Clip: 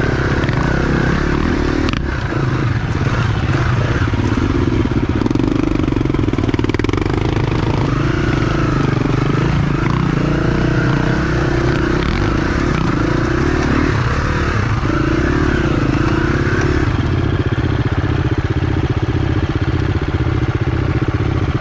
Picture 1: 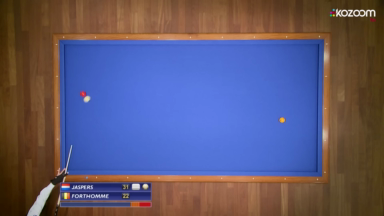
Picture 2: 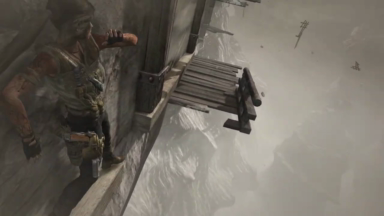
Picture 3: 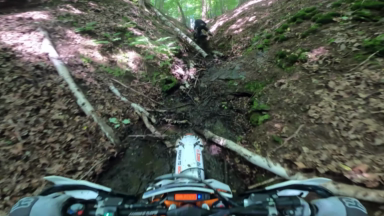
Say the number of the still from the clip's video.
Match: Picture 3